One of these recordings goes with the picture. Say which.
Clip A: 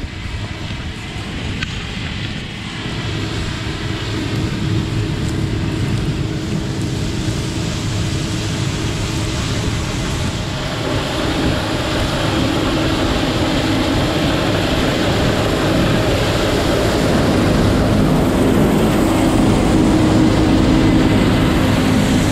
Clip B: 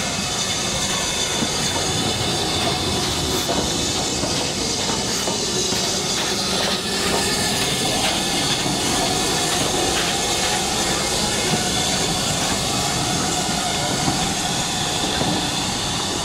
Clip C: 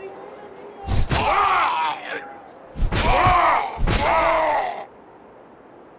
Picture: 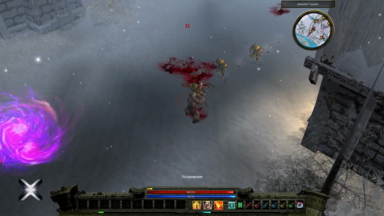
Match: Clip C